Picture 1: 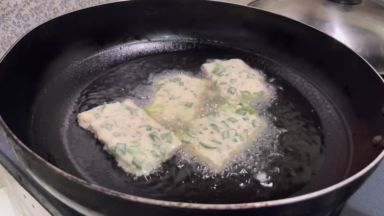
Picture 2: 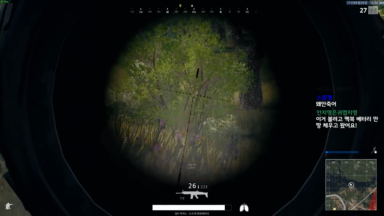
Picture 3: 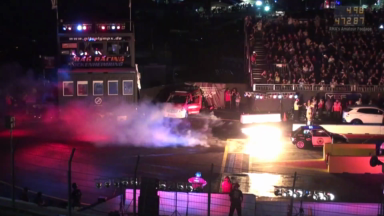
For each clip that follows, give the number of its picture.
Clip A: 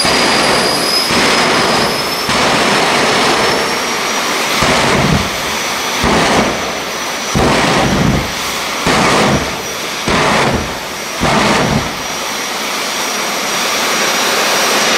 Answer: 3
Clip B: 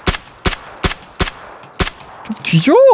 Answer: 2